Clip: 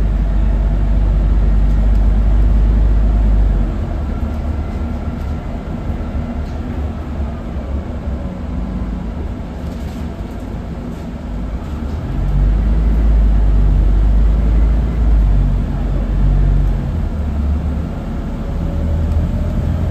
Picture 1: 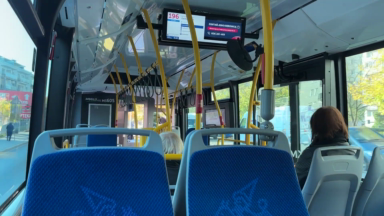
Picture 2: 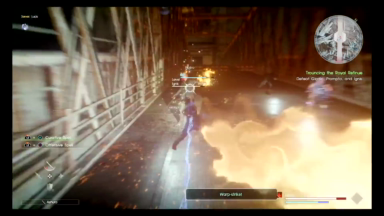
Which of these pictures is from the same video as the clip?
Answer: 1